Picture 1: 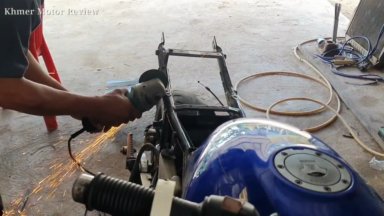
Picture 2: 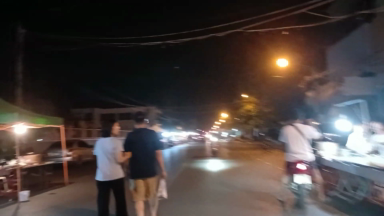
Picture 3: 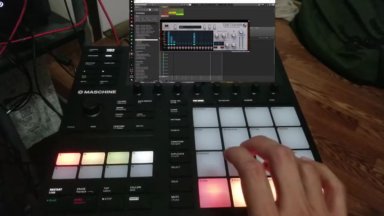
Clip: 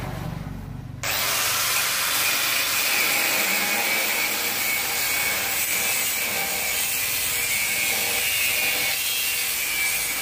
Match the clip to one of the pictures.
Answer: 1